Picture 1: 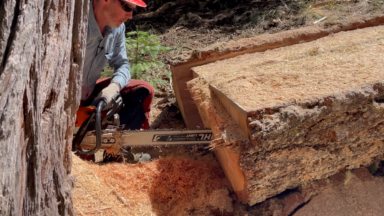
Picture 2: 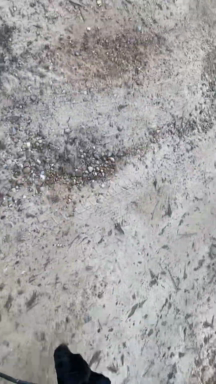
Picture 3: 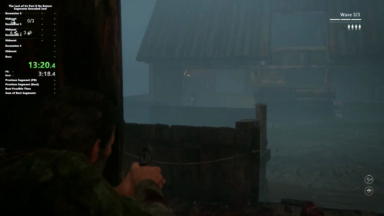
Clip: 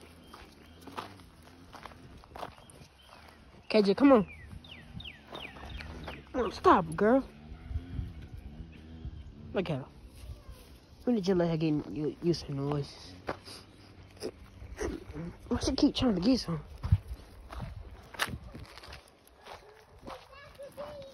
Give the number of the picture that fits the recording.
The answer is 2